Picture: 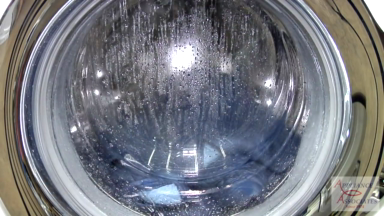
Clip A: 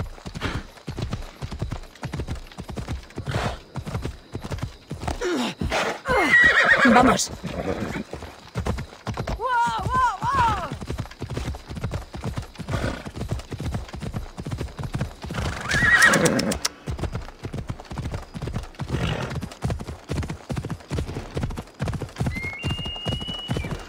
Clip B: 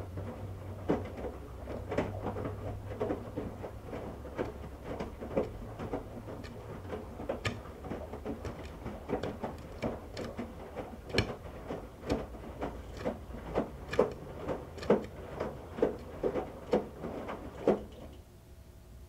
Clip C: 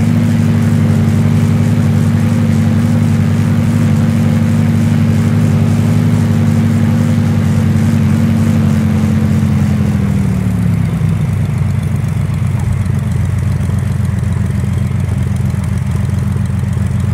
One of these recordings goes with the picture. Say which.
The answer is B